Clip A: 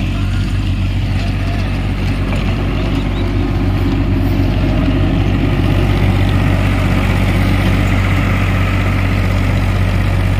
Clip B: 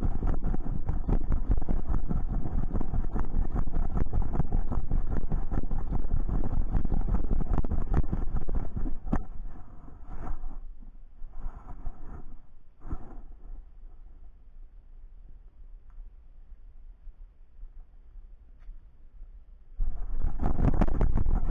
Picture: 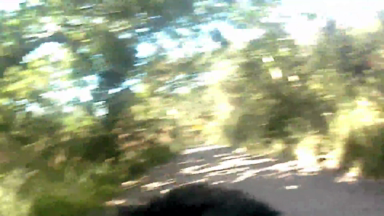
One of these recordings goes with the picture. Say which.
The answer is B